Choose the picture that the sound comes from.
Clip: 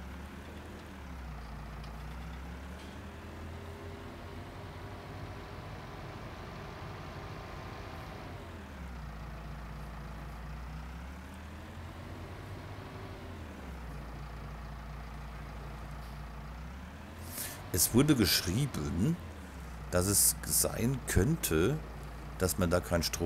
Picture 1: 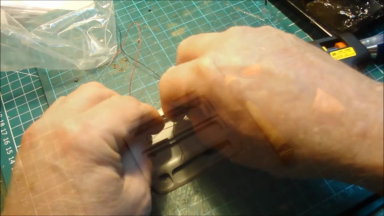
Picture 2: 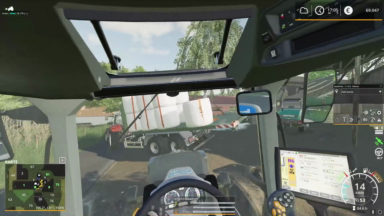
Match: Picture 2